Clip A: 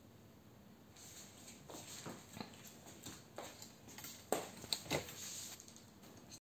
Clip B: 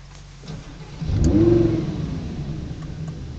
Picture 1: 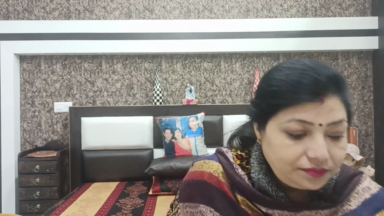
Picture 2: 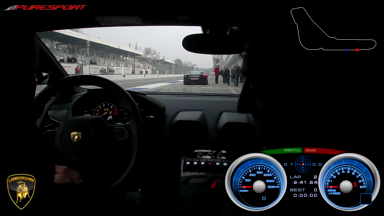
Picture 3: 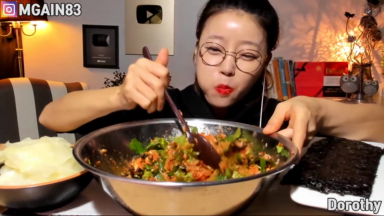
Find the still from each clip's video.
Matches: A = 1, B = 2